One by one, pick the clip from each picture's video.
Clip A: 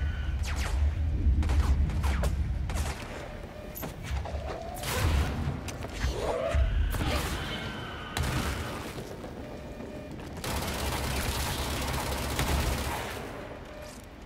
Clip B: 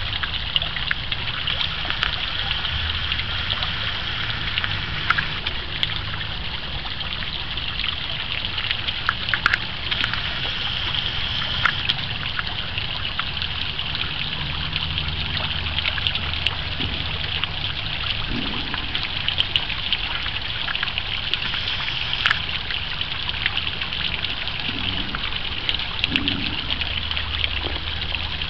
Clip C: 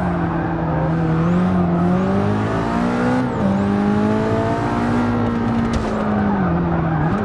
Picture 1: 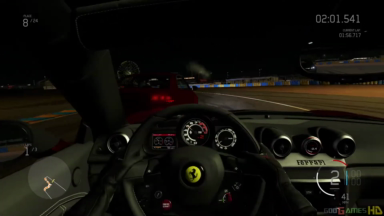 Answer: C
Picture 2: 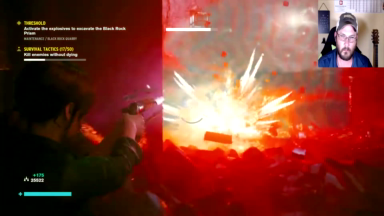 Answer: A